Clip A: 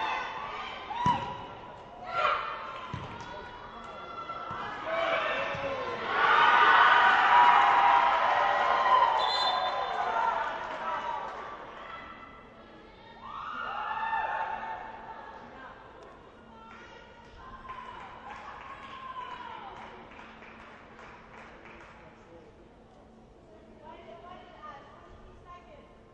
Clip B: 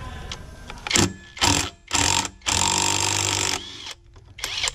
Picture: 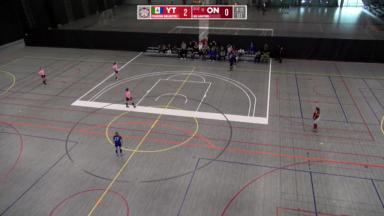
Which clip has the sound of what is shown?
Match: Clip A